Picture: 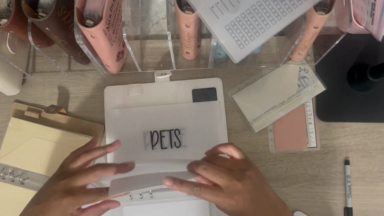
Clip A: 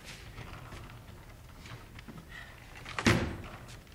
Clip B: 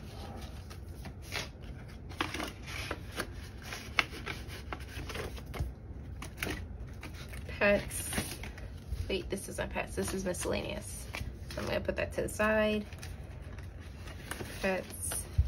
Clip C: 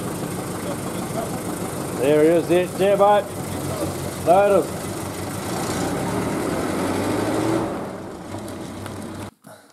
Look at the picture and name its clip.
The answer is B